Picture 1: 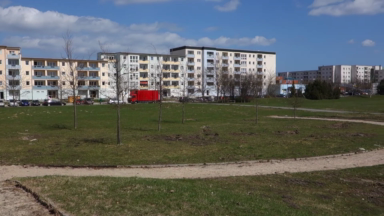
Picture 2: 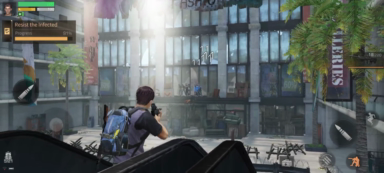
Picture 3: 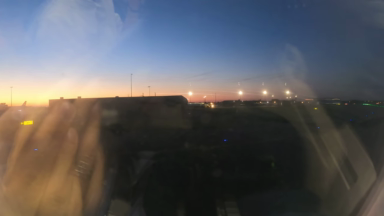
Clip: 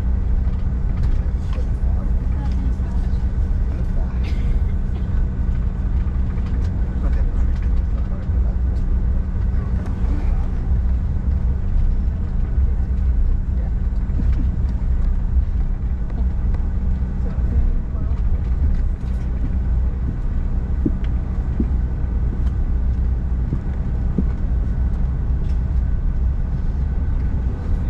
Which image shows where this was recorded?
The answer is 3